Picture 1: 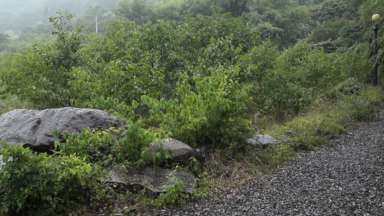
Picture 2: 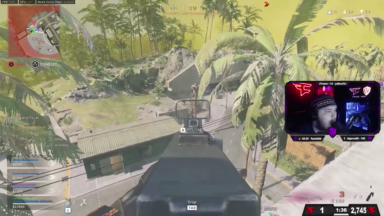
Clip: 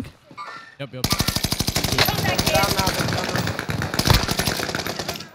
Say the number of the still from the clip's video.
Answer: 2